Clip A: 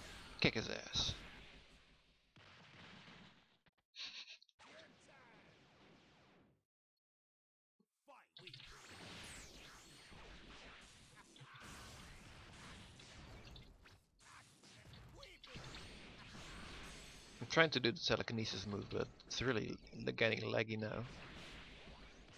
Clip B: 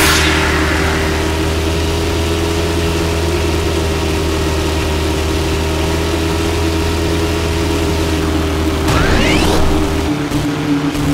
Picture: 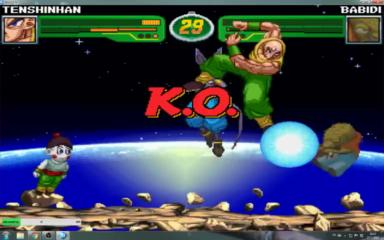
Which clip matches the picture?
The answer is A